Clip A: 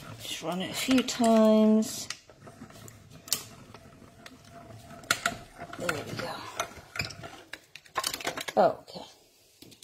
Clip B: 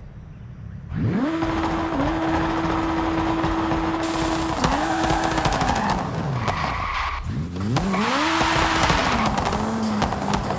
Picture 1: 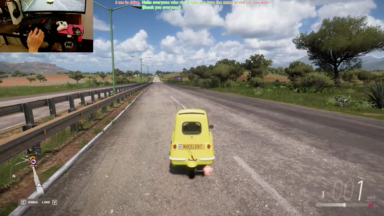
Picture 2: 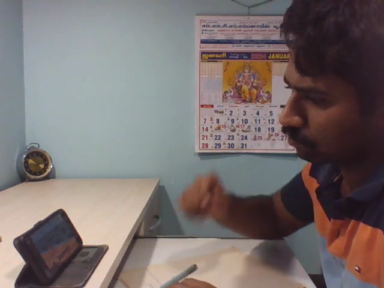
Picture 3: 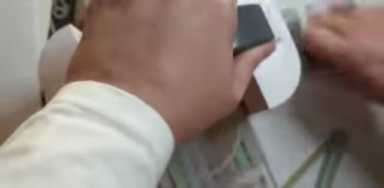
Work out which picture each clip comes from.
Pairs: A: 3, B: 1